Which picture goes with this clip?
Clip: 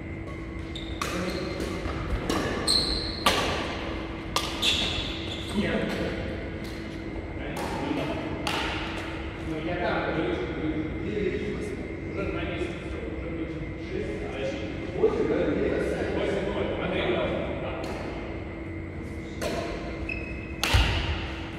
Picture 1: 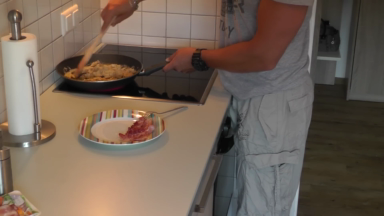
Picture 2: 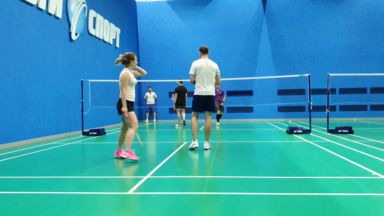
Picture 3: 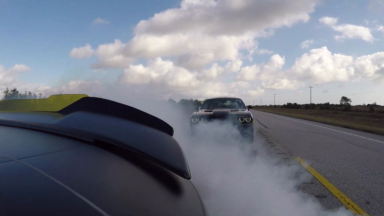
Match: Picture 2